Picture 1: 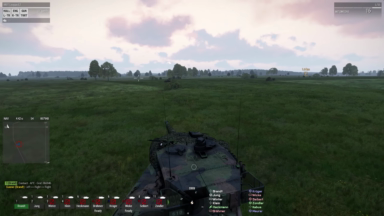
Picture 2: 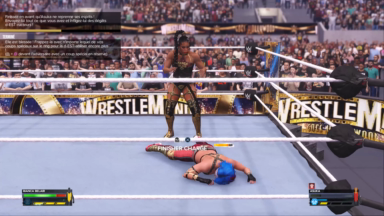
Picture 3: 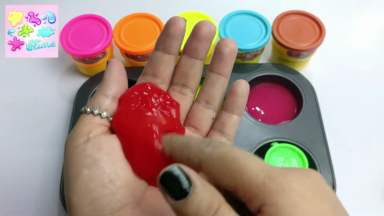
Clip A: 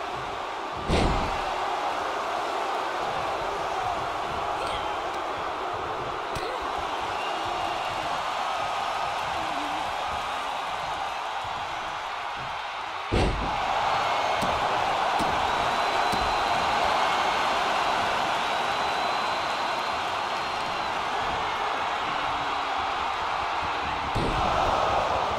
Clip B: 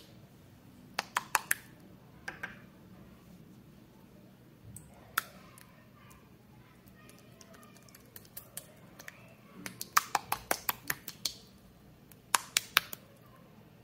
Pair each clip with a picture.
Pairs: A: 2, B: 3